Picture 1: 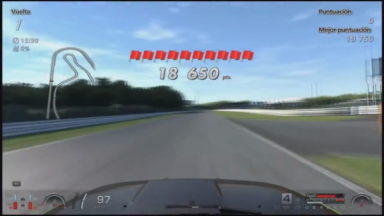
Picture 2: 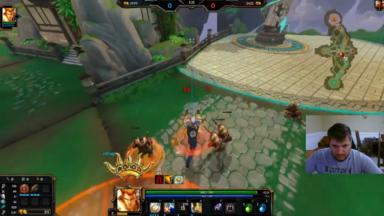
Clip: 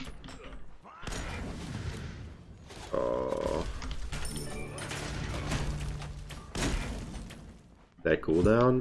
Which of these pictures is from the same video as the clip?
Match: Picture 2